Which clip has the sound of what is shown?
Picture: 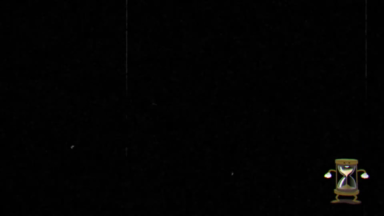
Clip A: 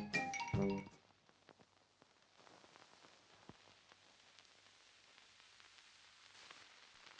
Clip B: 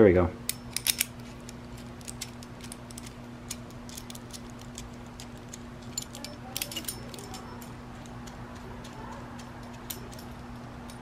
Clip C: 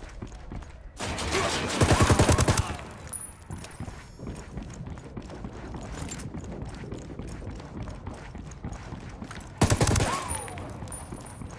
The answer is A